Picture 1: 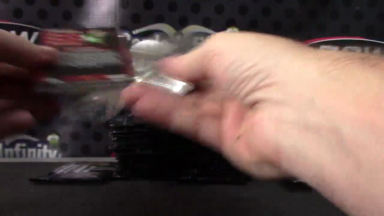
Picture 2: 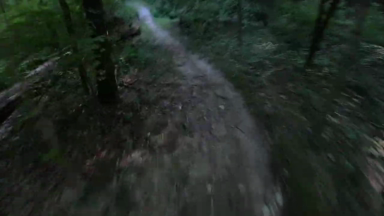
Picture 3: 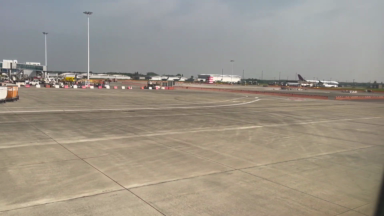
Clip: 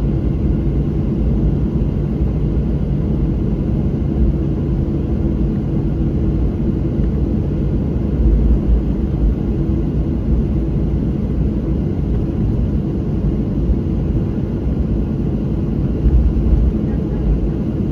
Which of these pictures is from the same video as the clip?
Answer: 3